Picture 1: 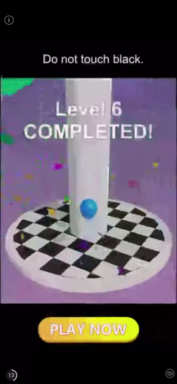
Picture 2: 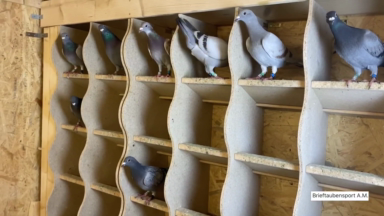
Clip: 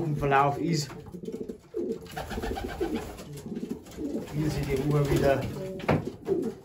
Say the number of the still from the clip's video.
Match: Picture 2